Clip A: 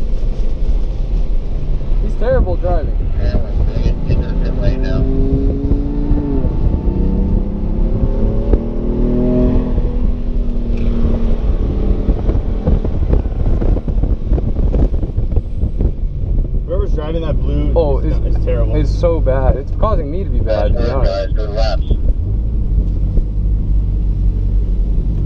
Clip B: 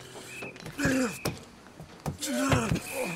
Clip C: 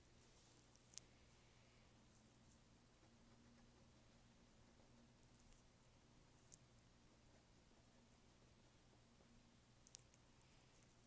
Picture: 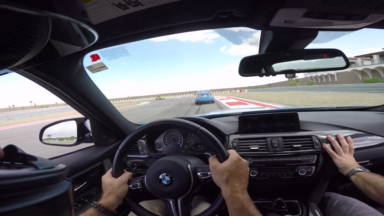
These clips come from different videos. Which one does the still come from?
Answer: A